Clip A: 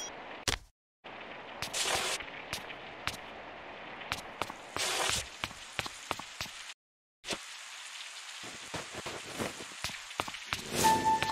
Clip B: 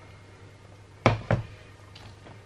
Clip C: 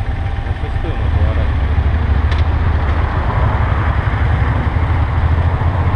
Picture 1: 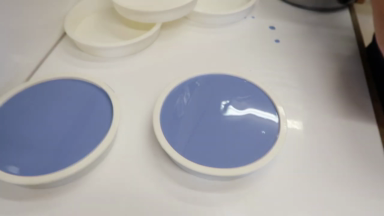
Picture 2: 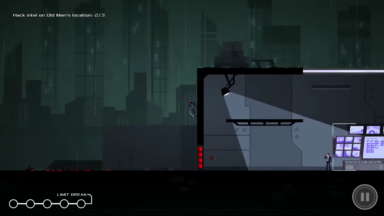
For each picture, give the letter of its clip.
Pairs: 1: B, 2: A